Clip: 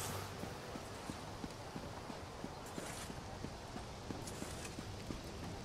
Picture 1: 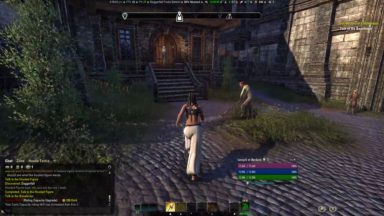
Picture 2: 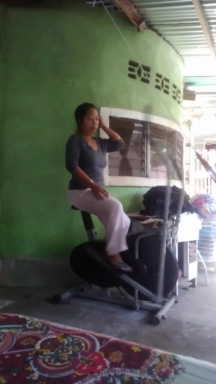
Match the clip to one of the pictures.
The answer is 1